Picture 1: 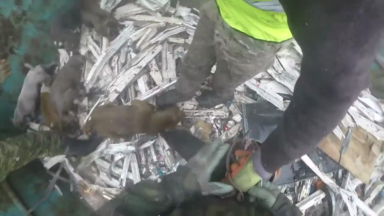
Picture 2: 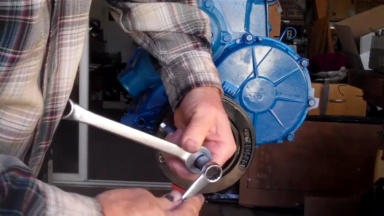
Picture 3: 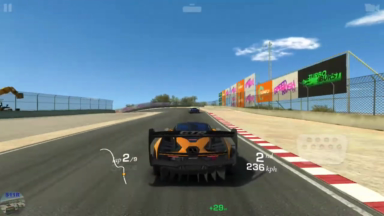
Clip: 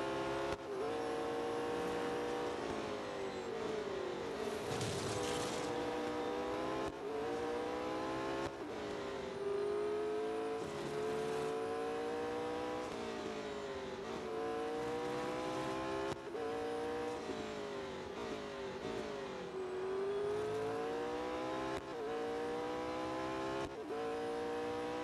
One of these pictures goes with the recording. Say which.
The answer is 3